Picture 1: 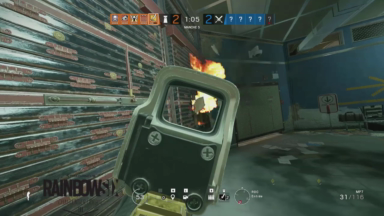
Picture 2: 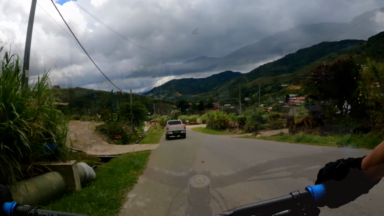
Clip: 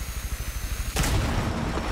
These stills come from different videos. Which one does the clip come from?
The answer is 1